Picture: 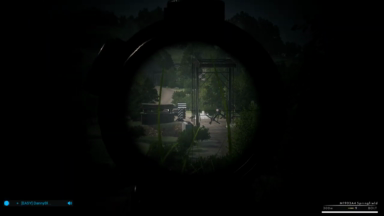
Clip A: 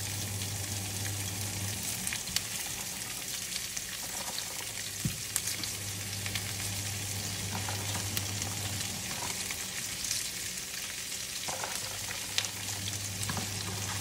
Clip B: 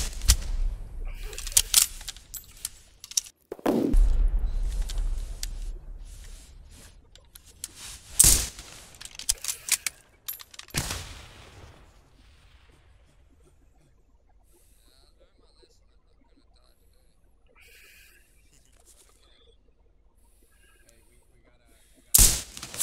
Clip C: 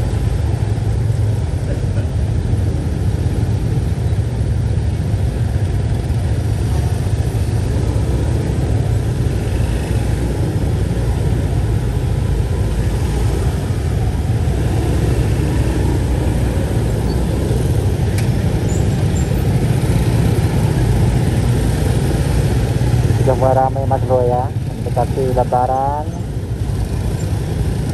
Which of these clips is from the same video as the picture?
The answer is B